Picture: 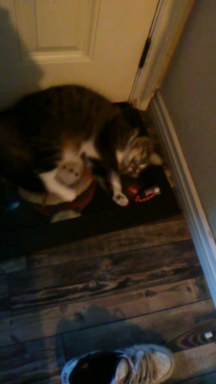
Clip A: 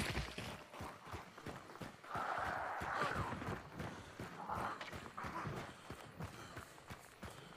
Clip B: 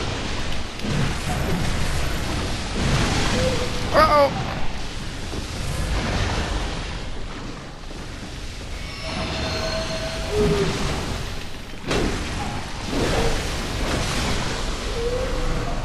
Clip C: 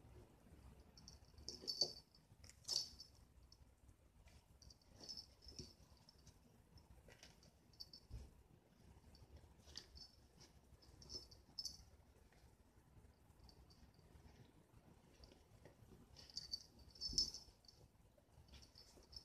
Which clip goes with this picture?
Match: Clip C